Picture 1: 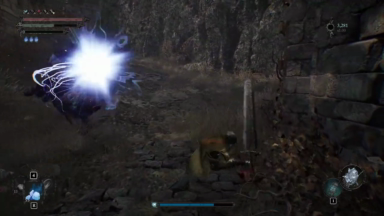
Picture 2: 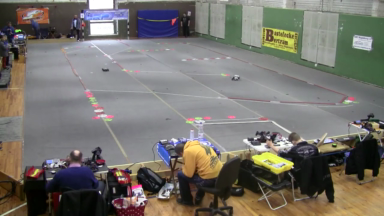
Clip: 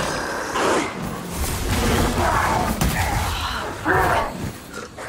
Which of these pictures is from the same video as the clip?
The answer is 1